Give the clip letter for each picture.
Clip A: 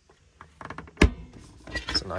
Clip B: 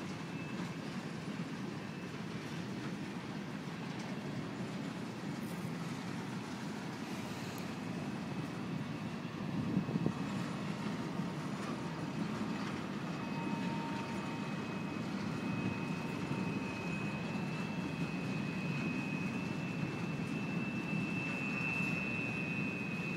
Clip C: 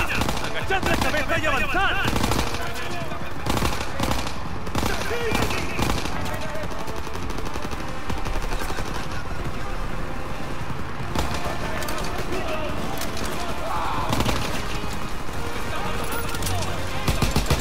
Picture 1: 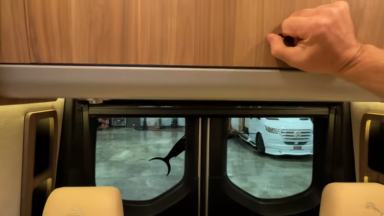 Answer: A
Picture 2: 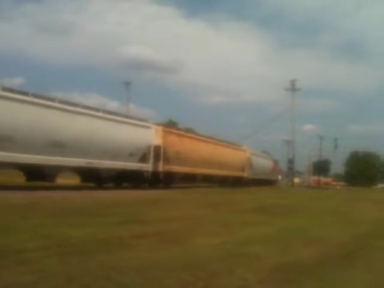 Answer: B